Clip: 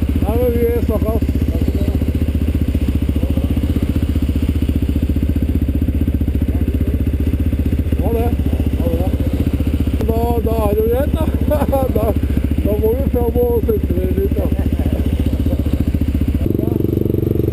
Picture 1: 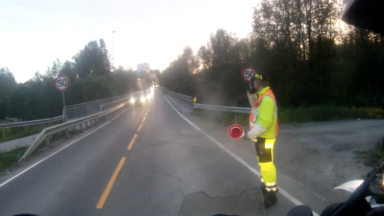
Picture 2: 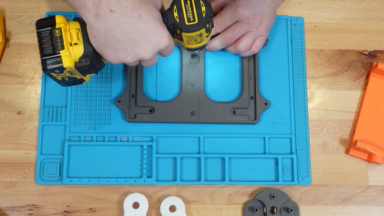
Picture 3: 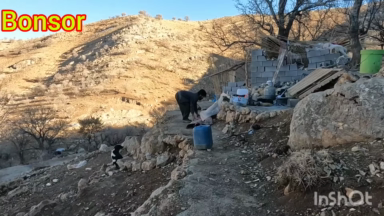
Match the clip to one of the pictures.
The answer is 1